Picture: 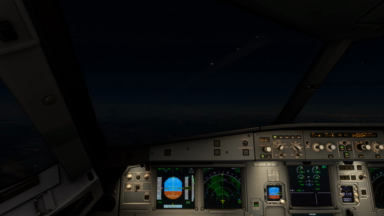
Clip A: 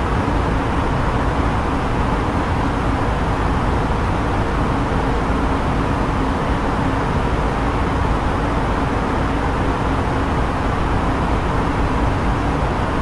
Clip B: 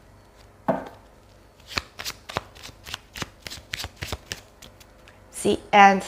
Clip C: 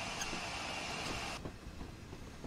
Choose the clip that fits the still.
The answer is A